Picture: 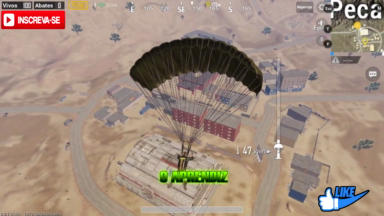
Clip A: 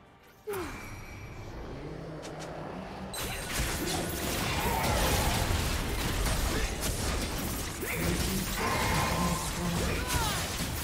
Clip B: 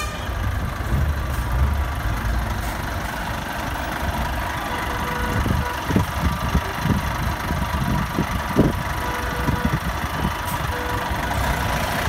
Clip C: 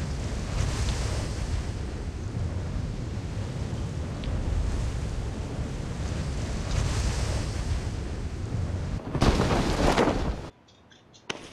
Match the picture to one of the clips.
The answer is C